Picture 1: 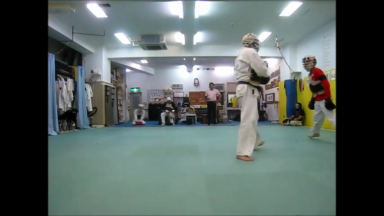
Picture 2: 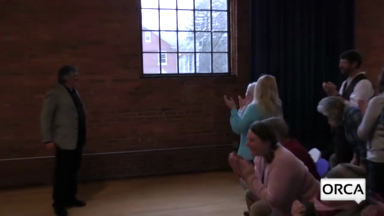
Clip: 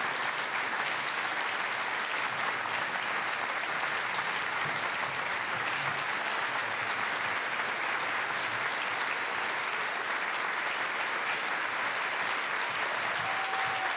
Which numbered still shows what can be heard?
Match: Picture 2